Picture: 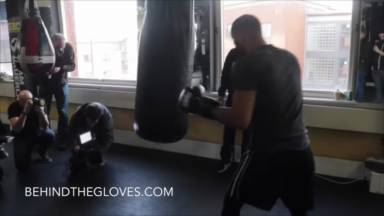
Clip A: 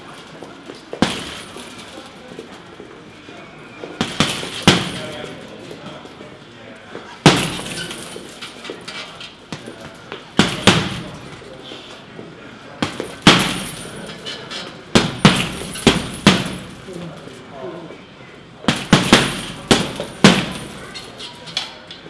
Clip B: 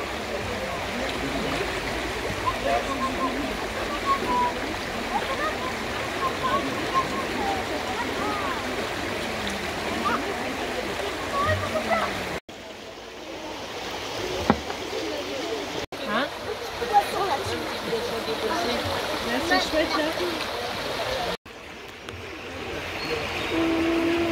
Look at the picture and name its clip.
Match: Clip A